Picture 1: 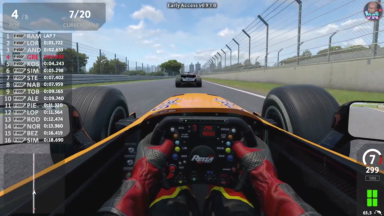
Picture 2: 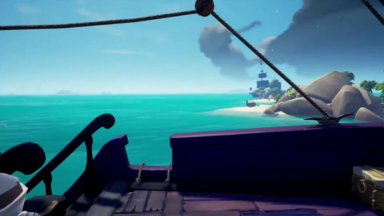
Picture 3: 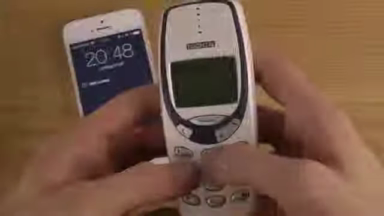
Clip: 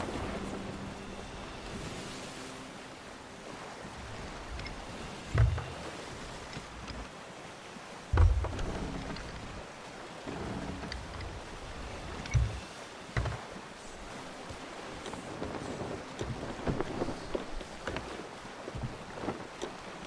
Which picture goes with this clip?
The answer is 2